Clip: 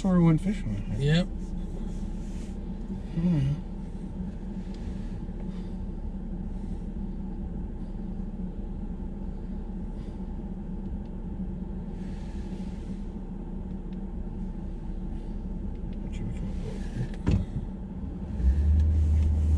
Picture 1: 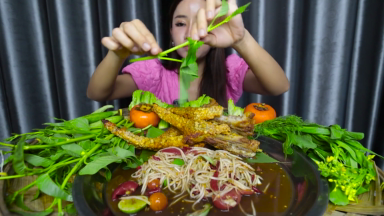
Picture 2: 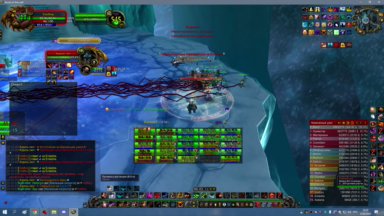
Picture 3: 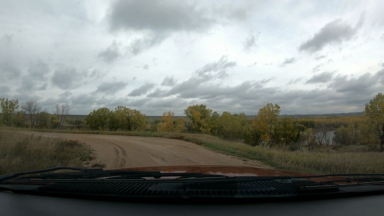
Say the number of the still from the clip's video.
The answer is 3